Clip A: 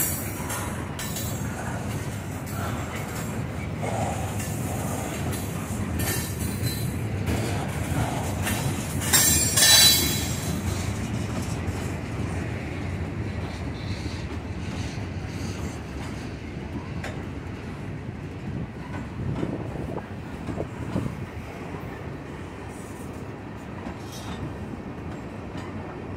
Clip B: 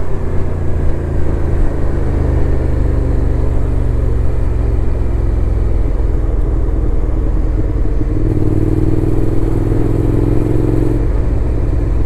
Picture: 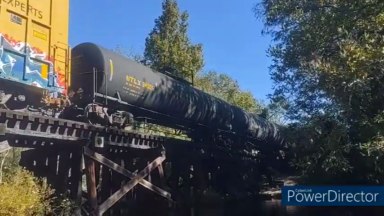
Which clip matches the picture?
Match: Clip A